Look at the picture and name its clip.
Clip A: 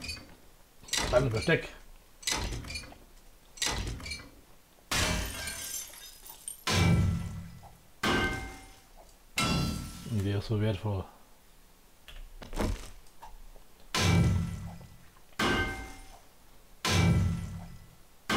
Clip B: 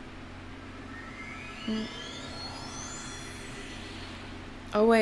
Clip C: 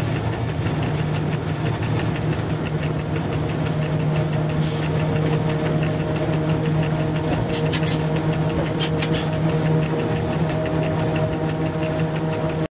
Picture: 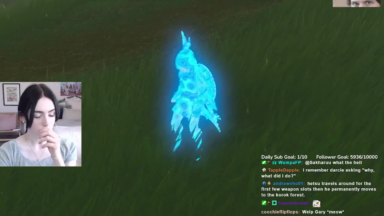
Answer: B